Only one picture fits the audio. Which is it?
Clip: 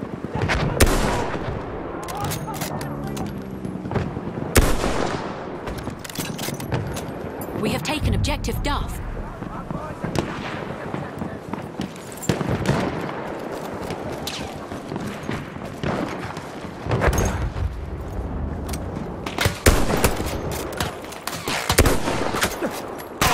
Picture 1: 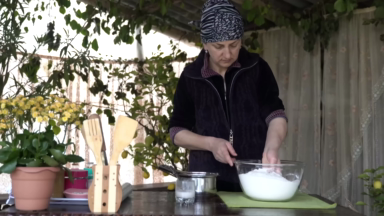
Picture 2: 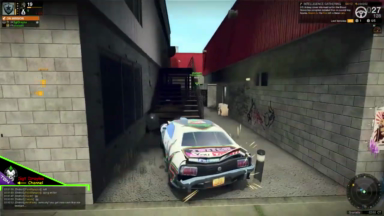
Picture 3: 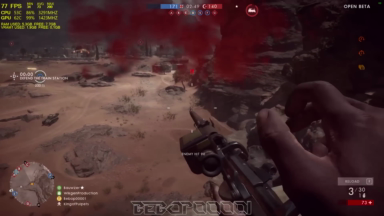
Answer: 3